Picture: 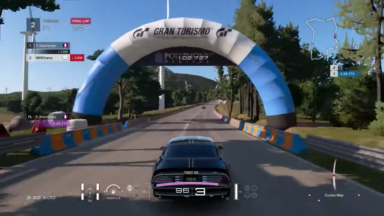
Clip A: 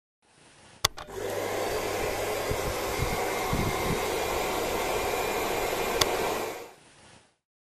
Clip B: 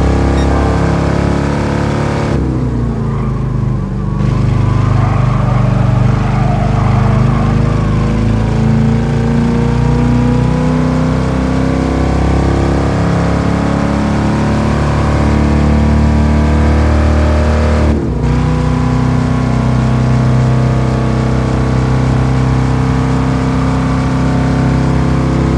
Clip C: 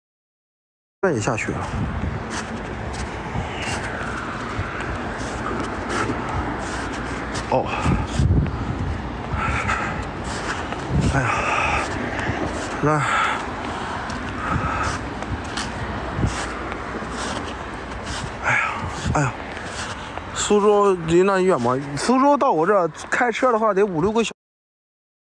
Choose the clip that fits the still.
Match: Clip B